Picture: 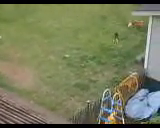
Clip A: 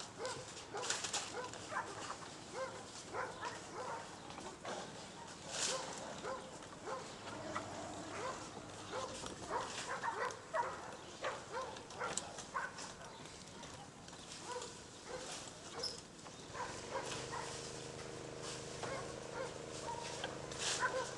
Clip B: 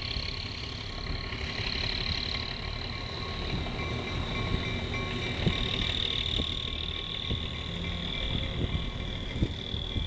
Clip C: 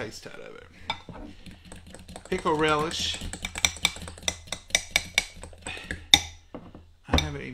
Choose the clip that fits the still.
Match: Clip A